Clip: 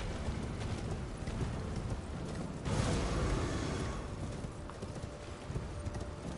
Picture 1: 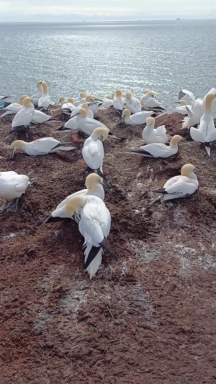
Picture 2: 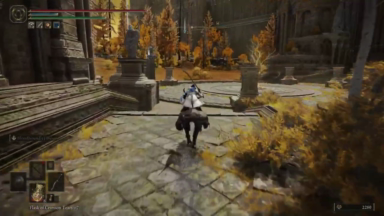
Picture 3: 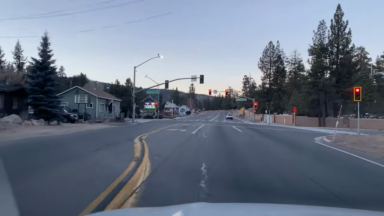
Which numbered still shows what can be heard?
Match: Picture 2